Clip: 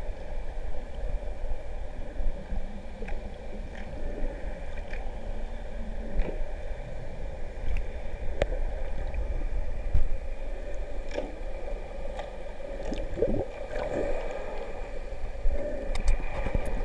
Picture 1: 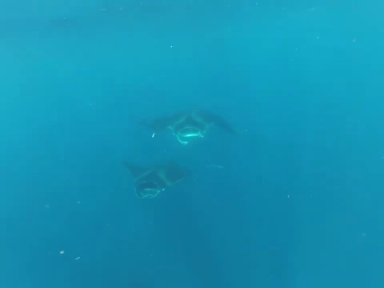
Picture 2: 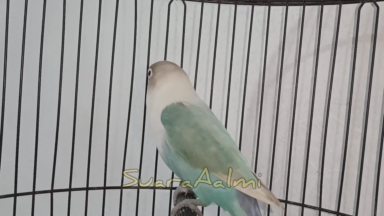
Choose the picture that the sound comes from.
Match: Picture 1